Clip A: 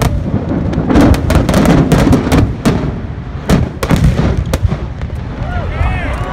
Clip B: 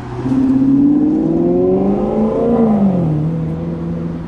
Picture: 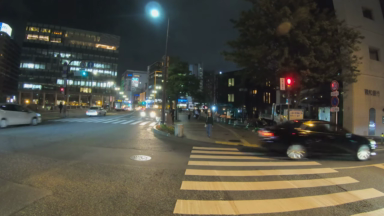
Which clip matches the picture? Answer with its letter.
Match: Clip B